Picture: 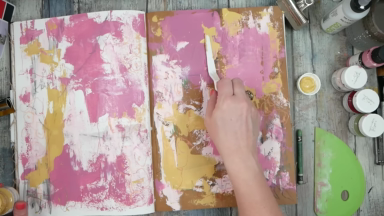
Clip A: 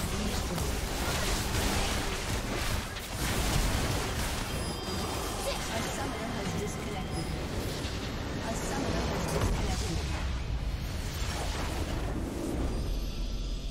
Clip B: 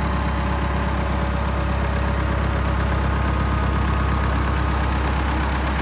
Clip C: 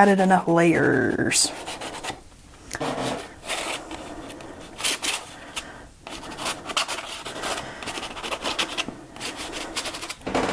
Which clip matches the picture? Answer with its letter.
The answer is C